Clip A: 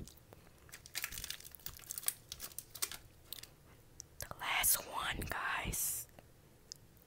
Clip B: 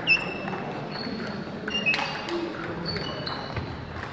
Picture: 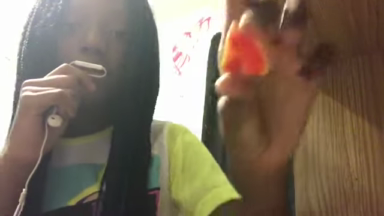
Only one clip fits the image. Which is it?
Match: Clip A